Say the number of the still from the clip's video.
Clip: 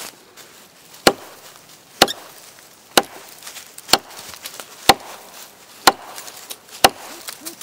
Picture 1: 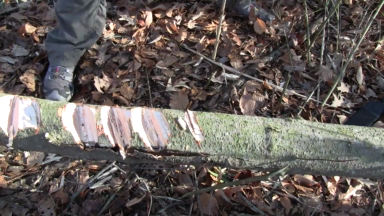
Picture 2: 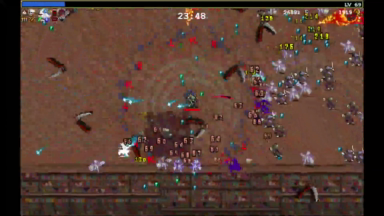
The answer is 1